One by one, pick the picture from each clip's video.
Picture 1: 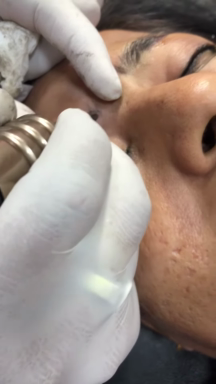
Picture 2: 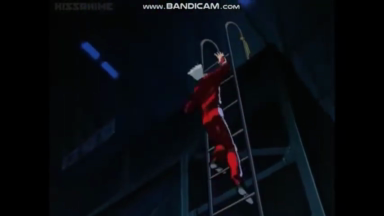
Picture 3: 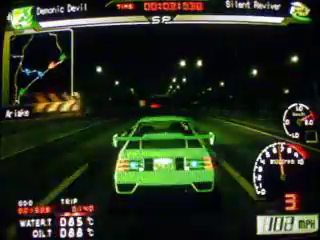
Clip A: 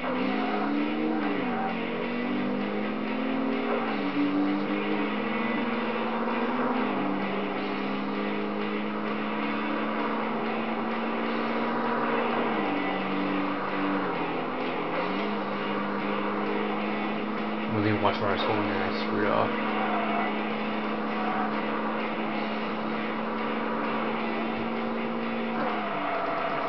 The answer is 3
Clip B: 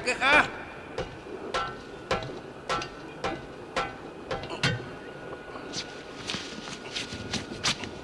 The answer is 2